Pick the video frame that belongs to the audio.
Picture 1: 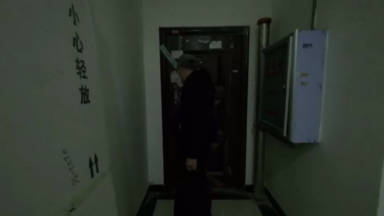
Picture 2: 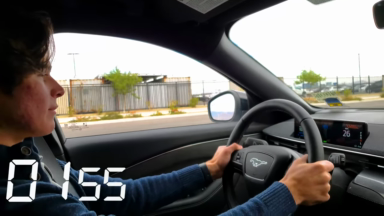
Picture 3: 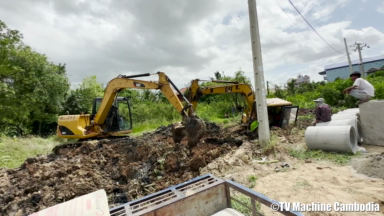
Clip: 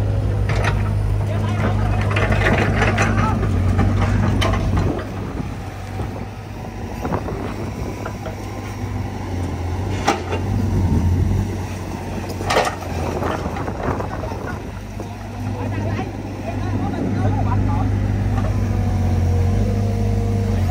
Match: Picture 3